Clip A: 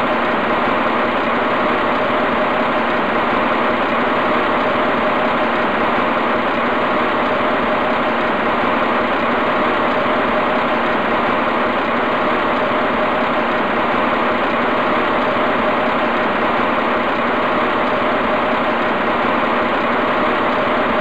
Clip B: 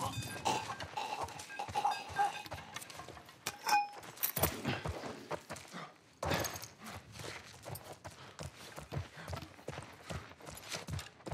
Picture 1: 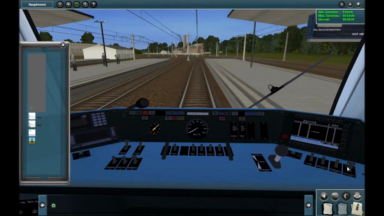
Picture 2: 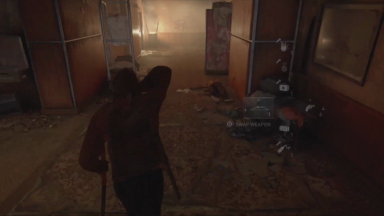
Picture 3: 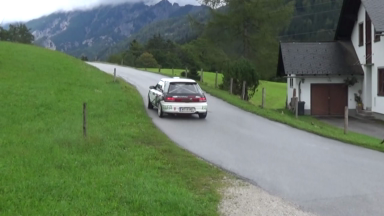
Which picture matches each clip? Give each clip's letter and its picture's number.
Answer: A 1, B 2